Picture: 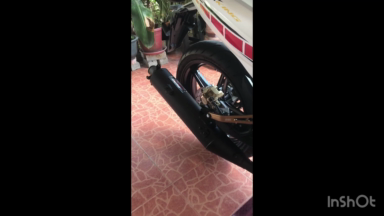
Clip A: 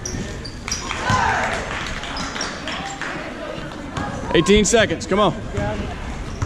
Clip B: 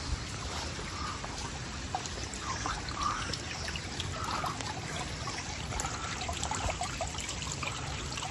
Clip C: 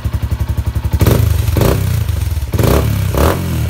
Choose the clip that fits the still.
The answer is C